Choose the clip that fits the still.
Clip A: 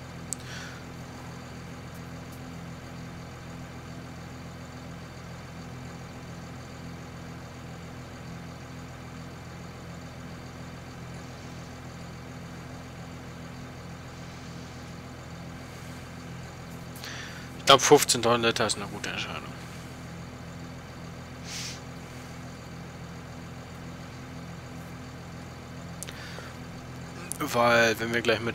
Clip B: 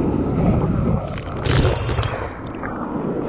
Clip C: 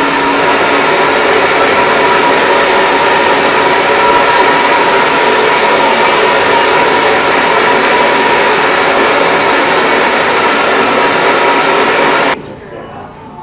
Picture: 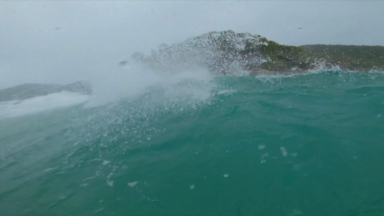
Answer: B